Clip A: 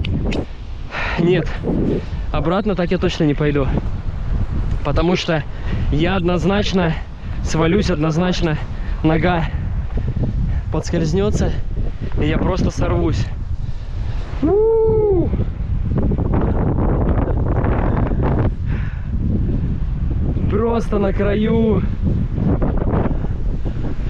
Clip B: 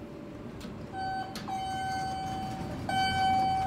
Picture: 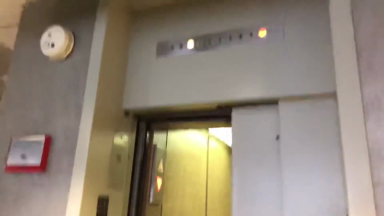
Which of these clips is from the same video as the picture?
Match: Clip B